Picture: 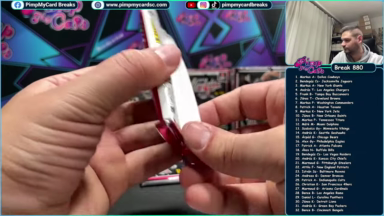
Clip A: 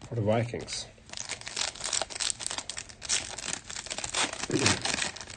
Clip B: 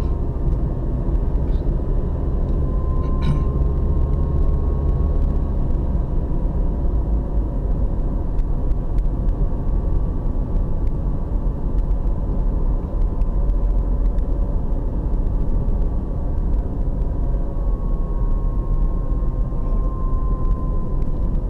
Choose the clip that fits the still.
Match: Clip A